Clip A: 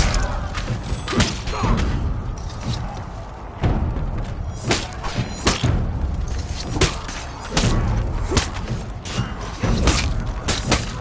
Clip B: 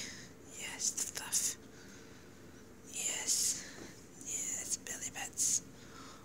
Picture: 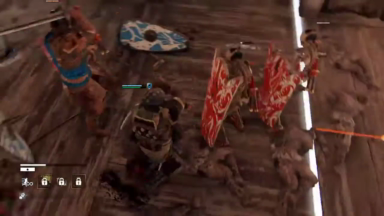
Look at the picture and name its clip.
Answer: A